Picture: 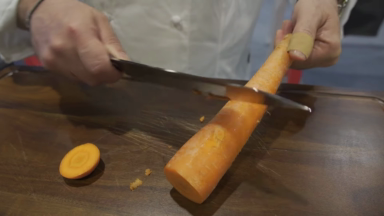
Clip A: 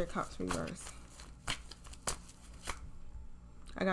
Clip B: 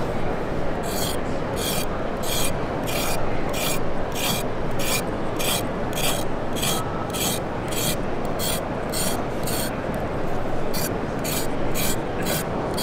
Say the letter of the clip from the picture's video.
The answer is B